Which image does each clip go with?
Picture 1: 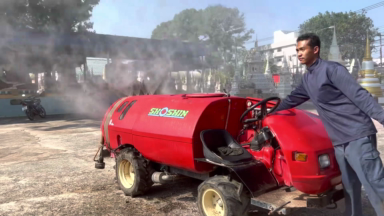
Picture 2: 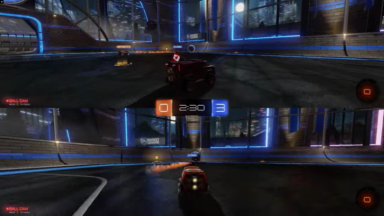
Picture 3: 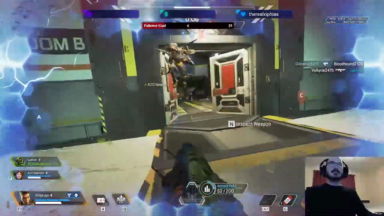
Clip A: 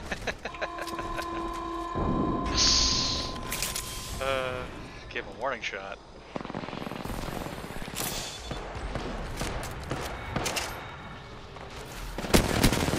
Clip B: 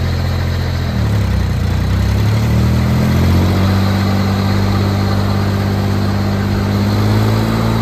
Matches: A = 3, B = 1